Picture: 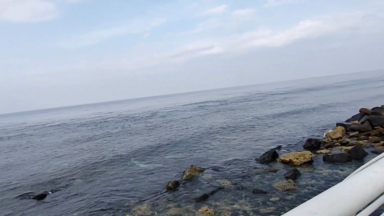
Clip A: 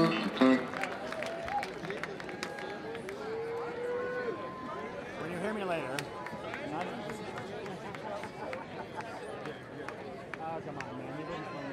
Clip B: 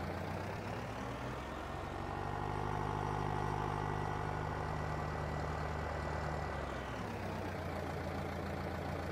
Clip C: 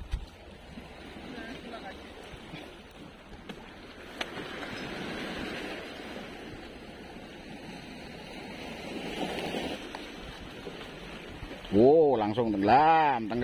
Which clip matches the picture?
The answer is C